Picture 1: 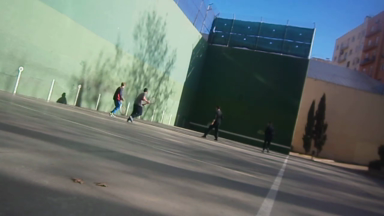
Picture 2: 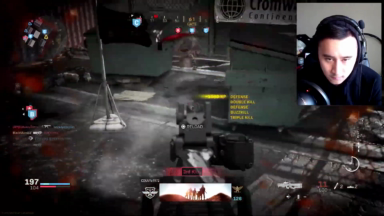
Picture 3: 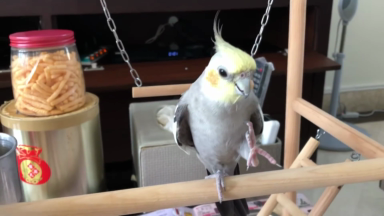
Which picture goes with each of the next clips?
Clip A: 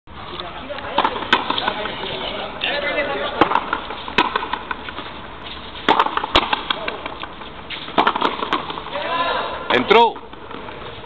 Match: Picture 1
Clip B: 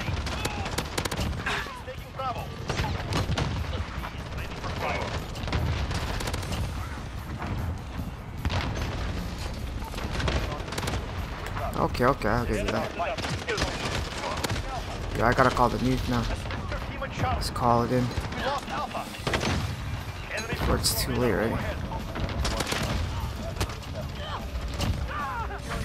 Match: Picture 2